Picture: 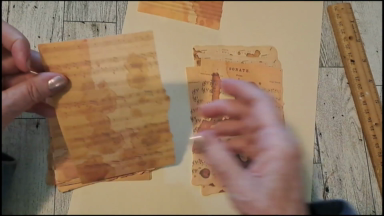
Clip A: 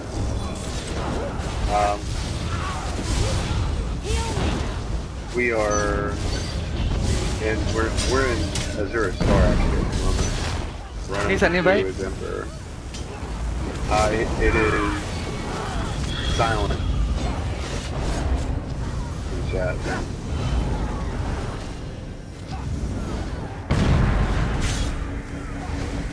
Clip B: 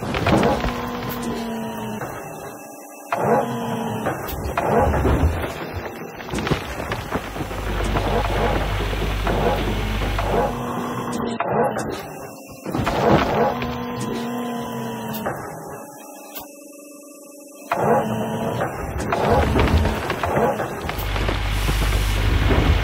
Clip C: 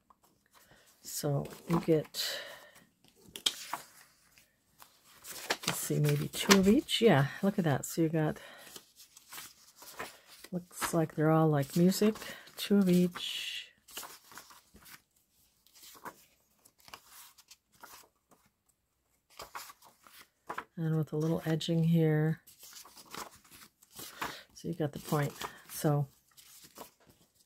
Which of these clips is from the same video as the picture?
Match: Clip C